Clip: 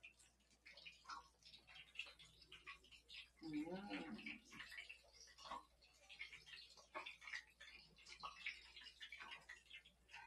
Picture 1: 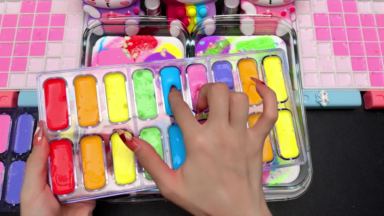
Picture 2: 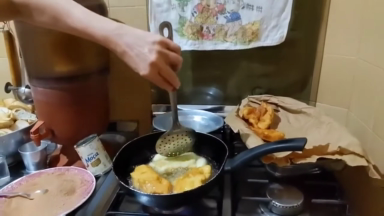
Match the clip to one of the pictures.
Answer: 2